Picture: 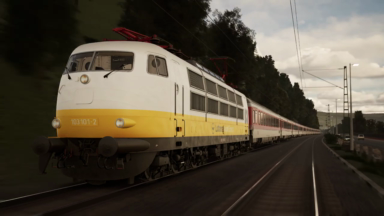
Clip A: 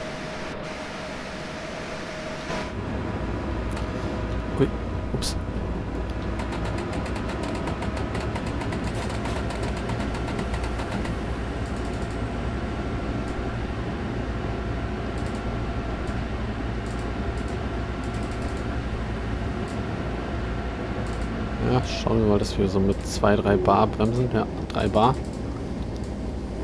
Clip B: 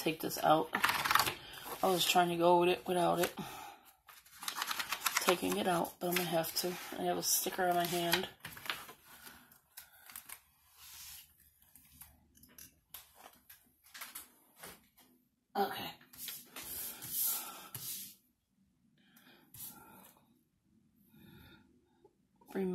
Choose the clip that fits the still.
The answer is A